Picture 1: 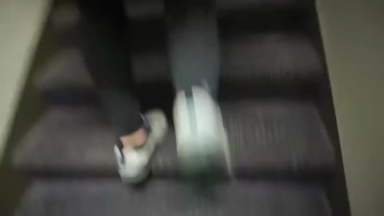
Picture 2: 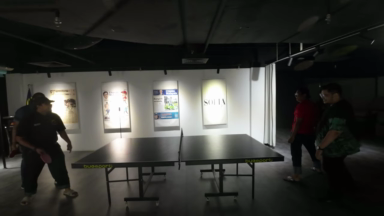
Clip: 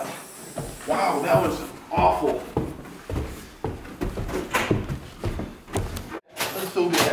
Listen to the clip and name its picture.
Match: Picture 1